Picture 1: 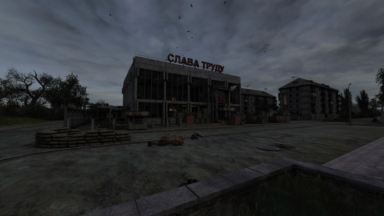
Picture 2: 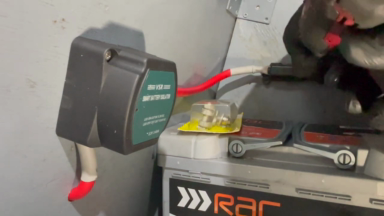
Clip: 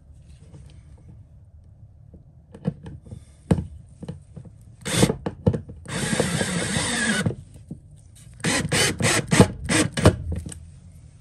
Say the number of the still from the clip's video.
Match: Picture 2